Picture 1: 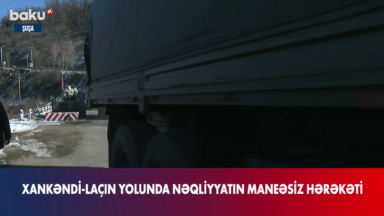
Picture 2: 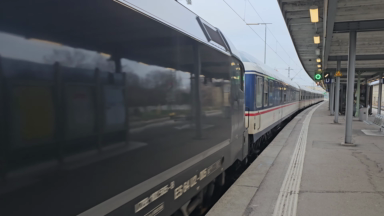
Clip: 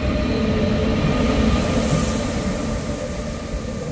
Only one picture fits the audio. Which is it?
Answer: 2